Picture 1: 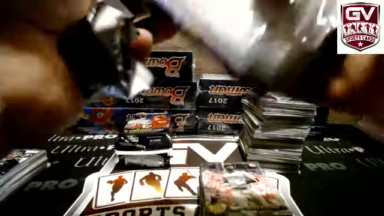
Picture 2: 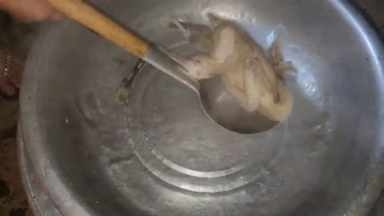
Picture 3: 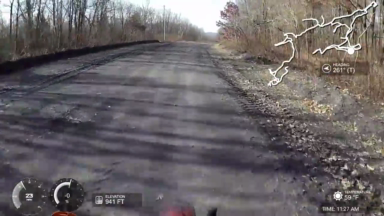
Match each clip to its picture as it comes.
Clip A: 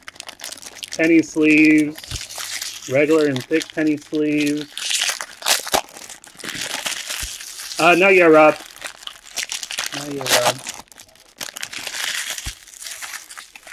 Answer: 1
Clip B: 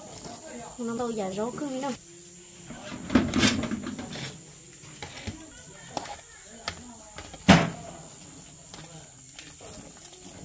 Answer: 2